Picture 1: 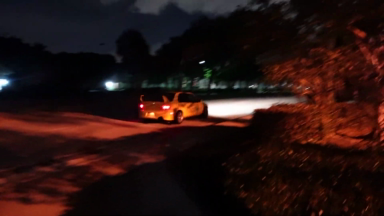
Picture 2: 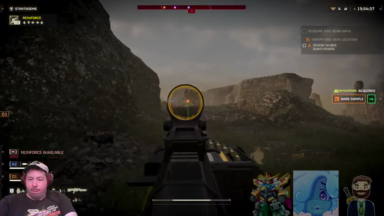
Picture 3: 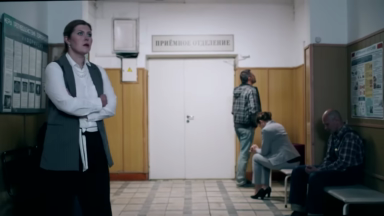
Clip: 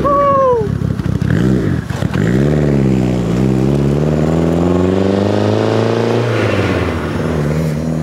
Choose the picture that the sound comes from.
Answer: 1